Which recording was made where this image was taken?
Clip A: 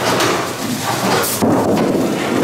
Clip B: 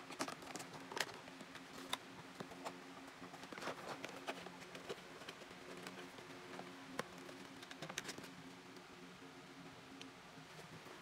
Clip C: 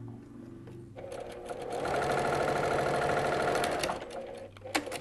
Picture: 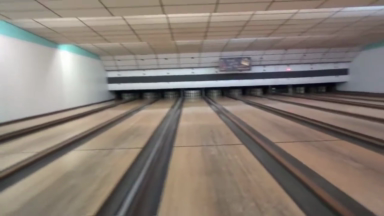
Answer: A